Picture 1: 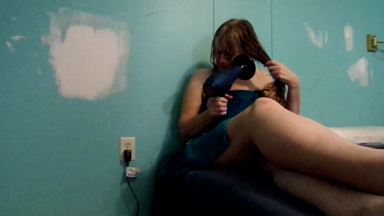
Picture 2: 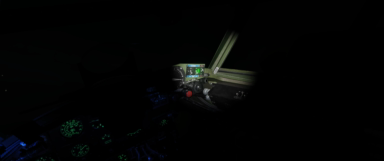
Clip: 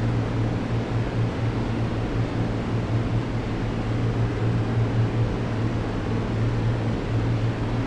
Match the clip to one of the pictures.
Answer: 2